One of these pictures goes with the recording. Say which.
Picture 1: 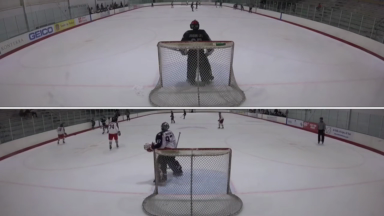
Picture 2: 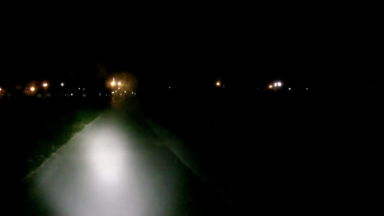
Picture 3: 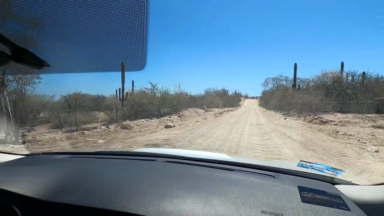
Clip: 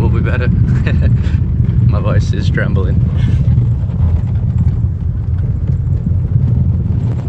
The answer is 3